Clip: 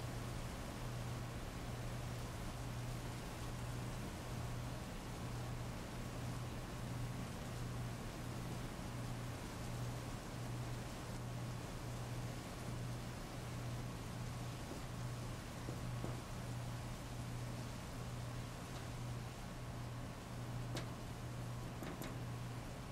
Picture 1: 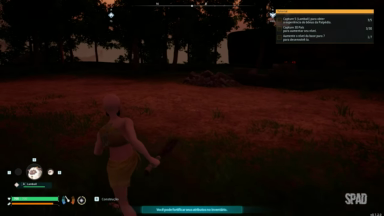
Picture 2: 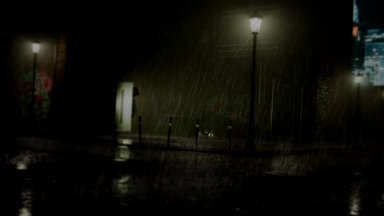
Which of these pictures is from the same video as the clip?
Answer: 2